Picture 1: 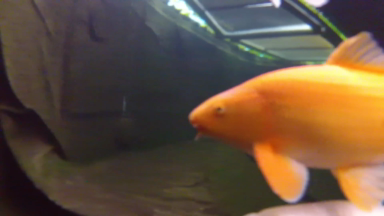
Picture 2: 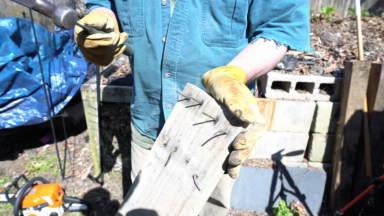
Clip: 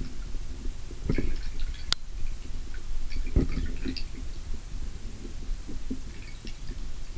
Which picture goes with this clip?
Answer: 1